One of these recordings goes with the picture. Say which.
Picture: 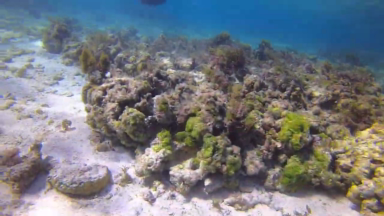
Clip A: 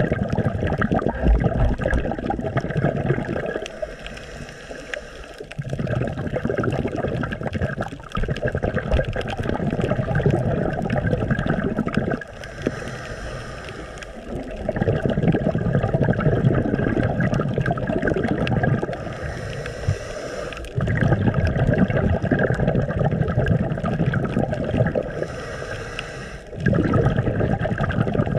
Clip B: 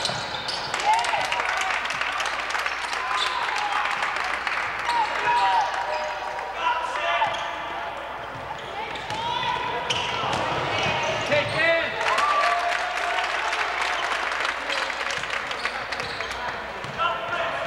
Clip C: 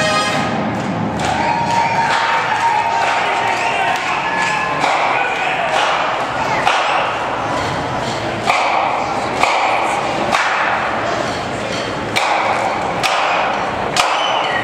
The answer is A